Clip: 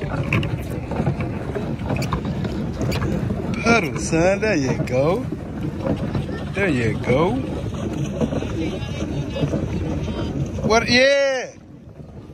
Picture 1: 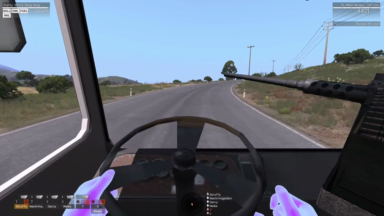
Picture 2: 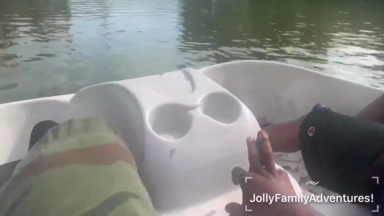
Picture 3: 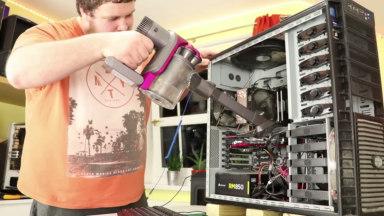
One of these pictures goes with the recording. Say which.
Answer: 2